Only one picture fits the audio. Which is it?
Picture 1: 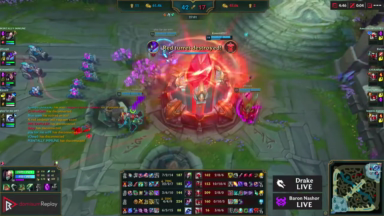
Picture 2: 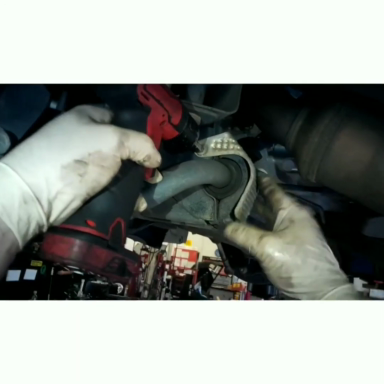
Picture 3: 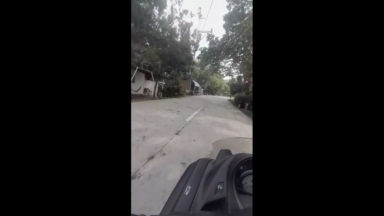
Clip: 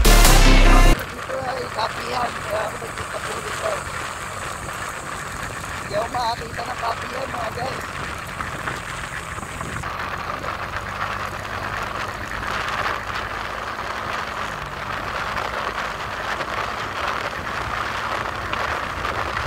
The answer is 3